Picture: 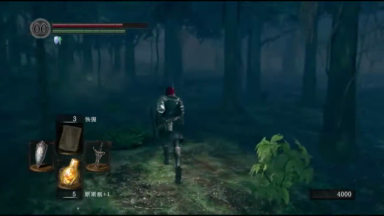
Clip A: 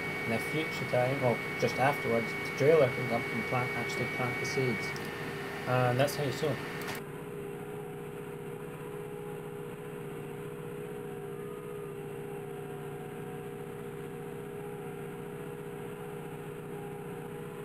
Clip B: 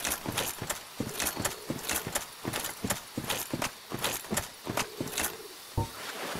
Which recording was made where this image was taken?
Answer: B